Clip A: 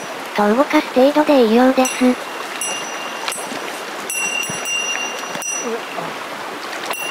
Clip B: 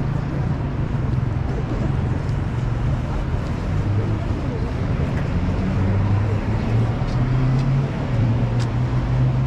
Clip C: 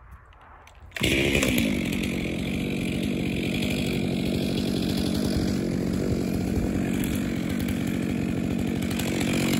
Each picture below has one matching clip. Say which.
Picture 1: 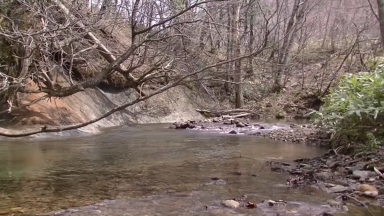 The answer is A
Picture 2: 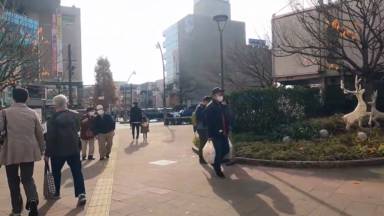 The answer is B